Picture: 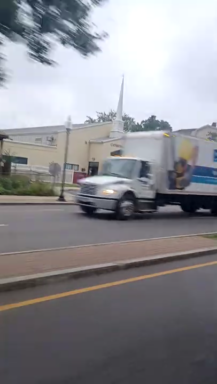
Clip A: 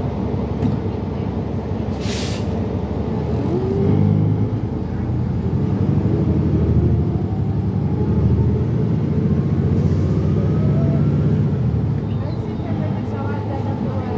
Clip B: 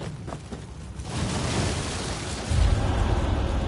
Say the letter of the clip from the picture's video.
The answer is A